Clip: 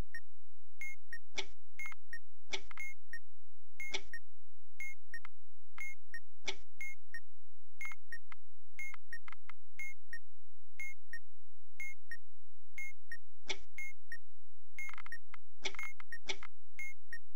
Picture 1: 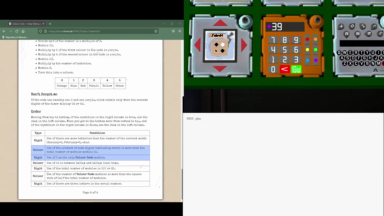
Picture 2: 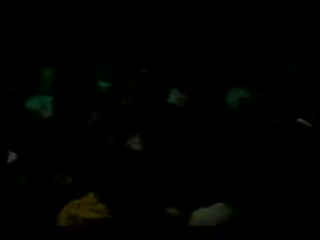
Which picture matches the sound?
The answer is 1